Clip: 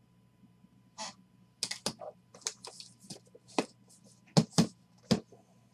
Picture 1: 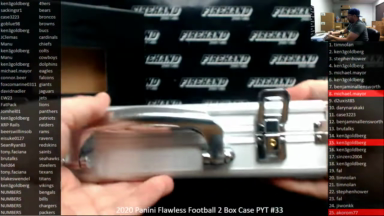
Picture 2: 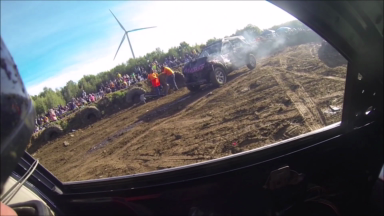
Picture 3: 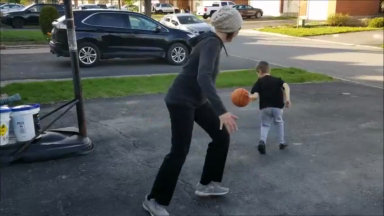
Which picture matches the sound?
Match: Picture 1